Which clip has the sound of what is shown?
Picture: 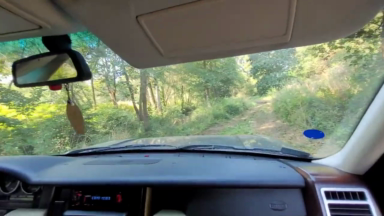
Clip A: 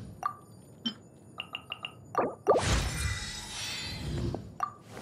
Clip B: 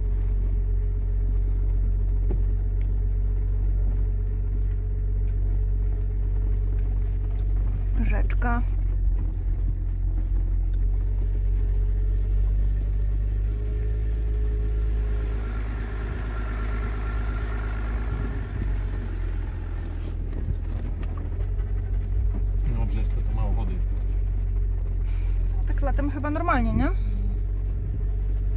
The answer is B